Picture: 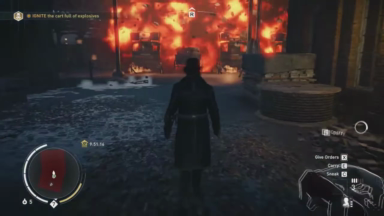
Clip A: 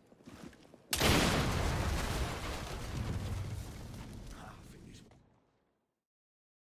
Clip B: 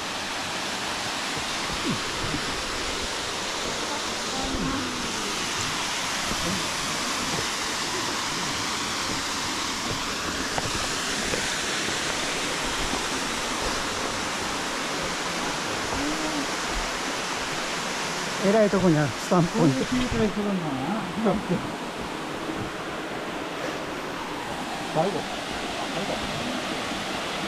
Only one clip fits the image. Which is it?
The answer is A